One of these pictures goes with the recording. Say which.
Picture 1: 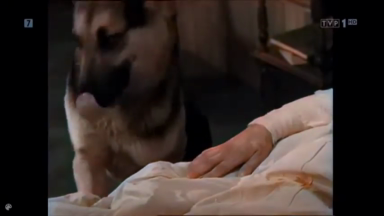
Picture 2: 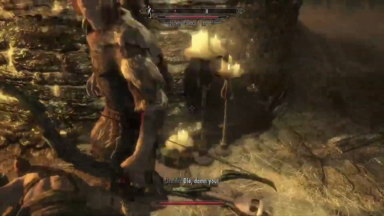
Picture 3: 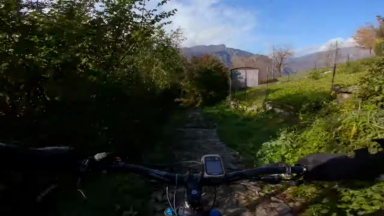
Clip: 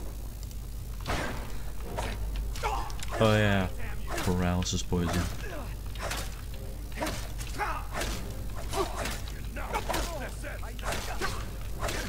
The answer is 2